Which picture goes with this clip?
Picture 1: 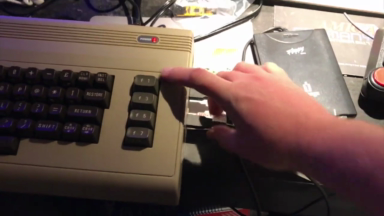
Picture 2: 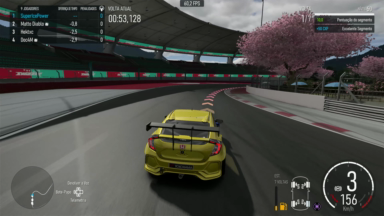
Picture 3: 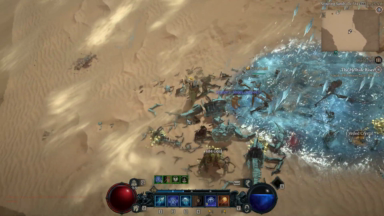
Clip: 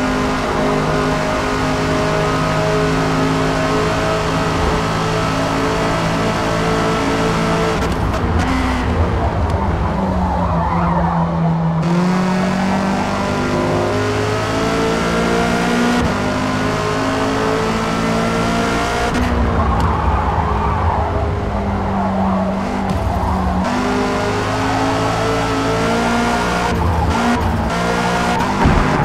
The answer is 2